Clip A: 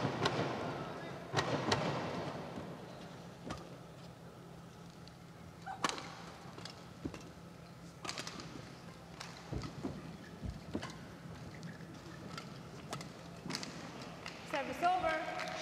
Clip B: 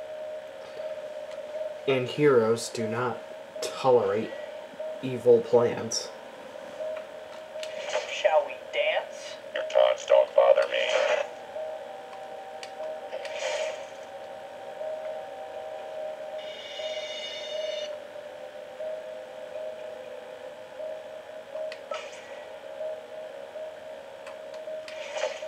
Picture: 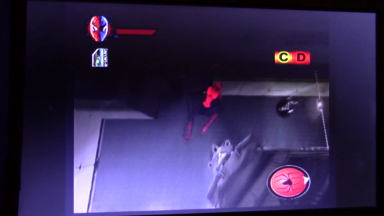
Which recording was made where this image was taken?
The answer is B